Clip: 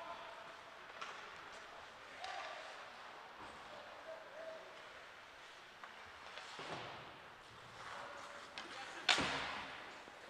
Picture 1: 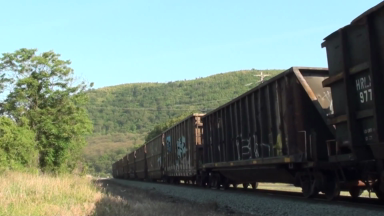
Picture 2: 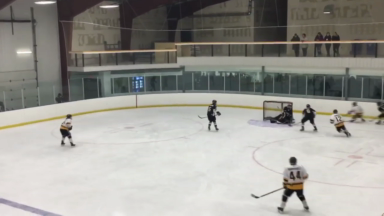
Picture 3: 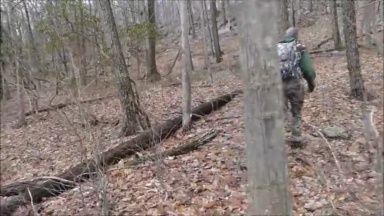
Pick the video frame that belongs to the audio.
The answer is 2